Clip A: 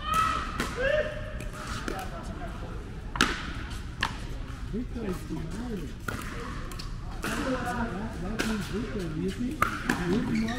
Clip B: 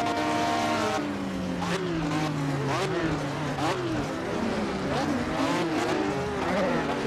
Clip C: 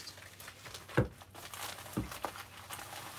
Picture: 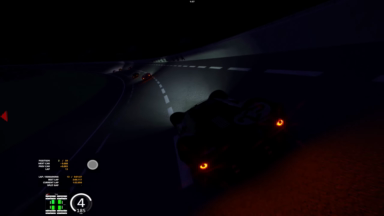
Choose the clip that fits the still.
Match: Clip B